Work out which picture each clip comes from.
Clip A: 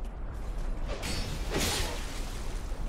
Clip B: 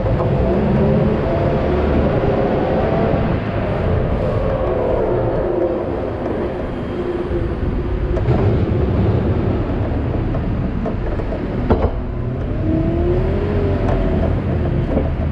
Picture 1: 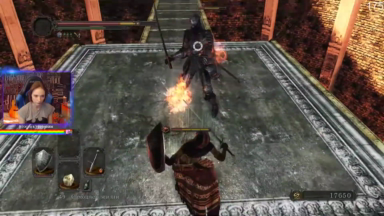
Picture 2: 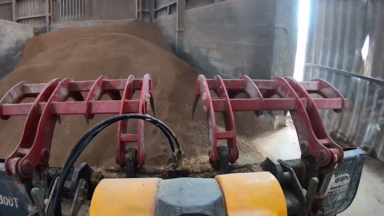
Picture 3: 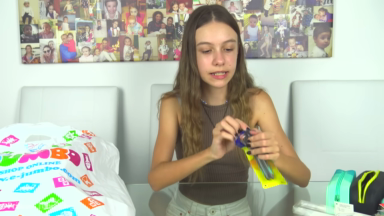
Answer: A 1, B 2